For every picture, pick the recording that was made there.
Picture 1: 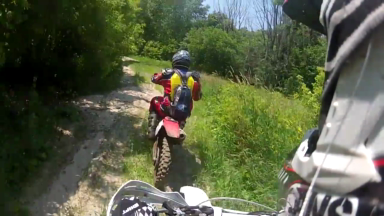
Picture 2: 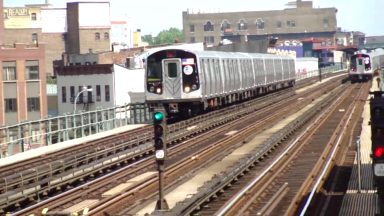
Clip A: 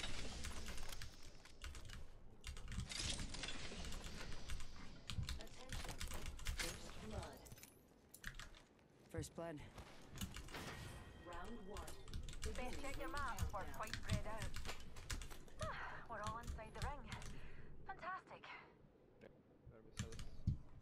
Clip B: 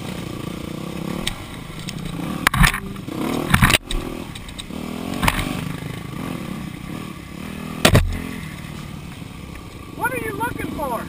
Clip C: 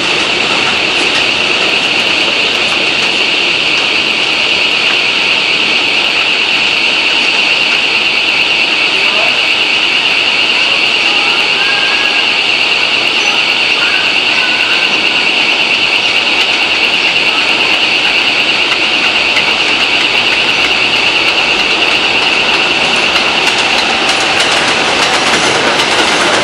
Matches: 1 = B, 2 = C